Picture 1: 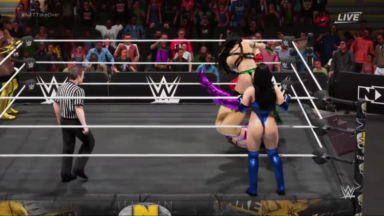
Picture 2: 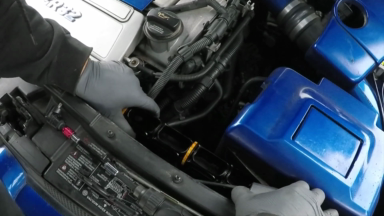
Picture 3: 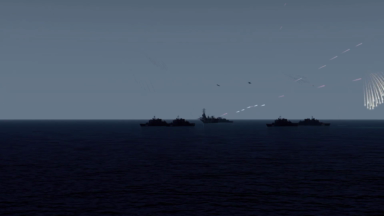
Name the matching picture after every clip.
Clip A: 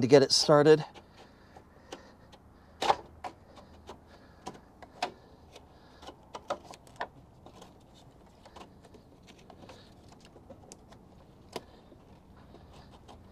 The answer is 2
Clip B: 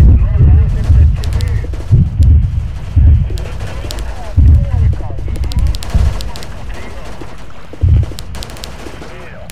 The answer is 3